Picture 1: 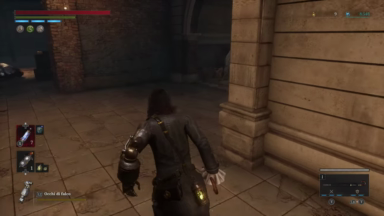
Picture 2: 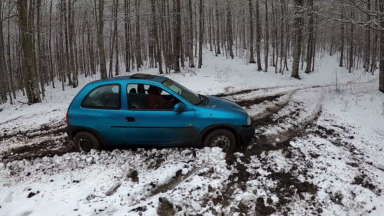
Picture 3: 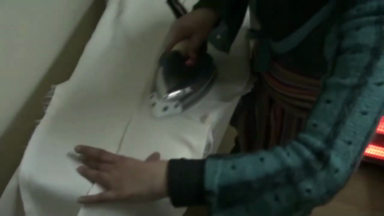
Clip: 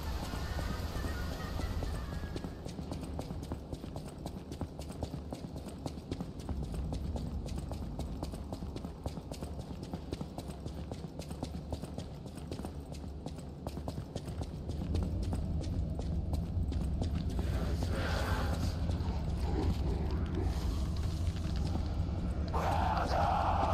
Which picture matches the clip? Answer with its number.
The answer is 1